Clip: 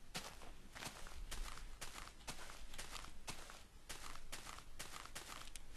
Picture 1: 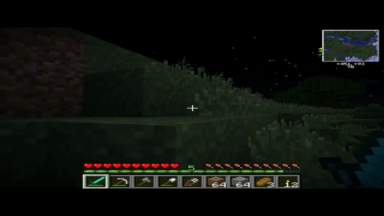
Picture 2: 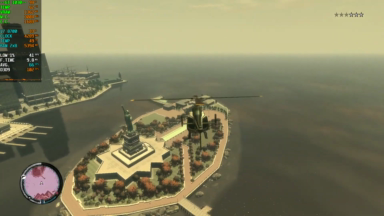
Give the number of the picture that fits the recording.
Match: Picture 1